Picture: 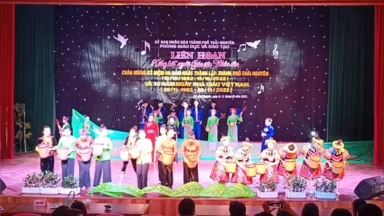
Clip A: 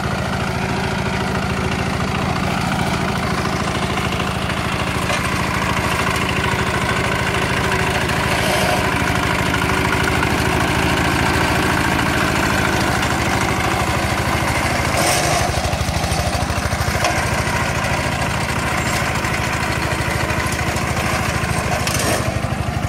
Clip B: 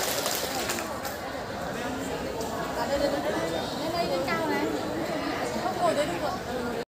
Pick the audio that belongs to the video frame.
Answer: B